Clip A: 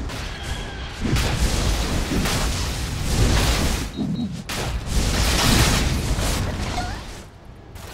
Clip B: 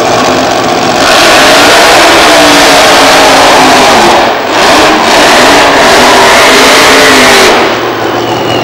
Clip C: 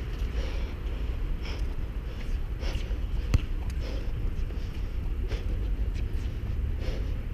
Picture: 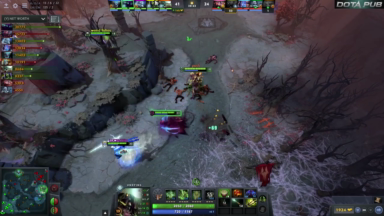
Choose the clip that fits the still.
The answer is A